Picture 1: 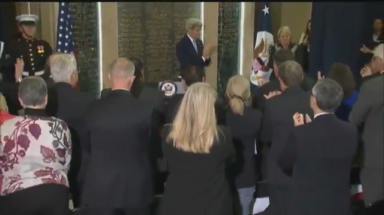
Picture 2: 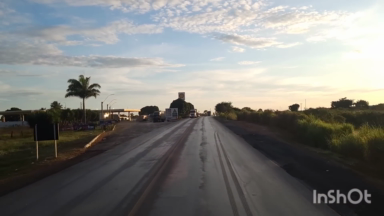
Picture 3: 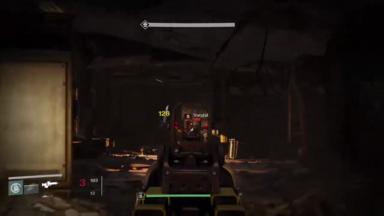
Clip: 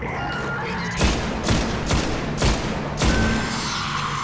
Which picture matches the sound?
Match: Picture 3